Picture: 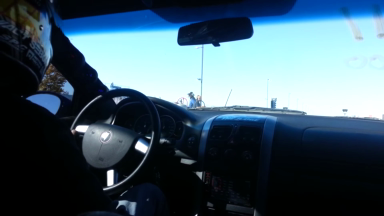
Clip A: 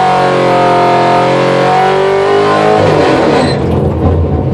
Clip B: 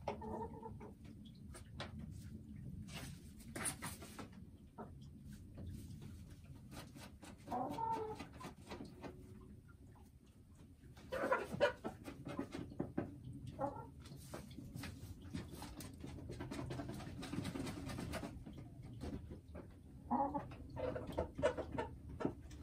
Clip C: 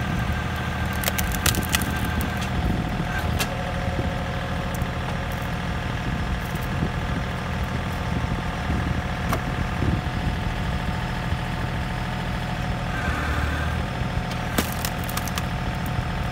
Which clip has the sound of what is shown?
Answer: A